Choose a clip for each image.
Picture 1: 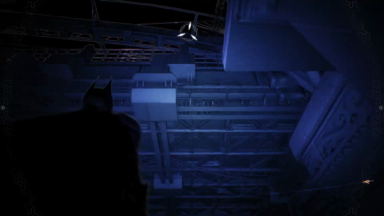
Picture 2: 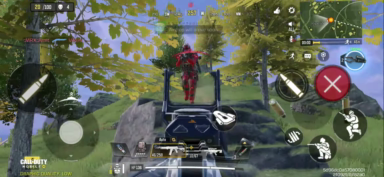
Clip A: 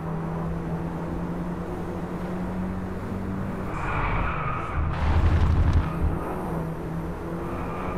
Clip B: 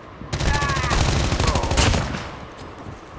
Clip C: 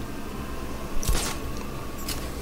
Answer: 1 C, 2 B